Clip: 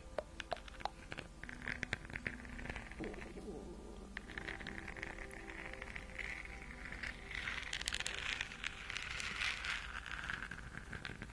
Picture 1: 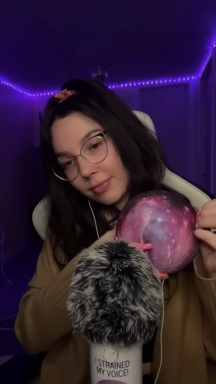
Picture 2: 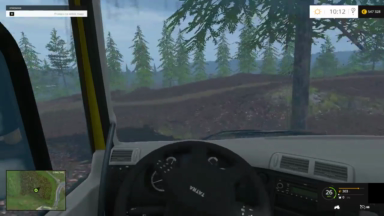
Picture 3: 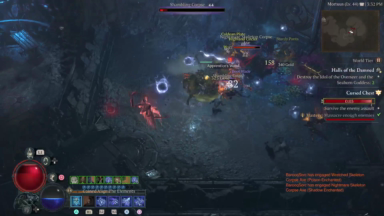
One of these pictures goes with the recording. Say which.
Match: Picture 1